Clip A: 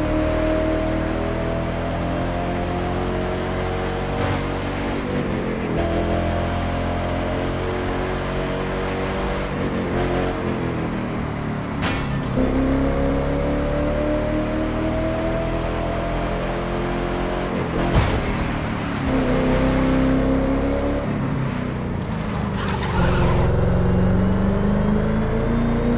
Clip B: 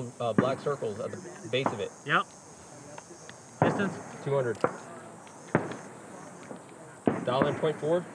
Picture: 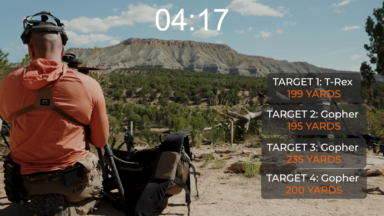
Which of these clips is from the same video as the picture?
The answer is B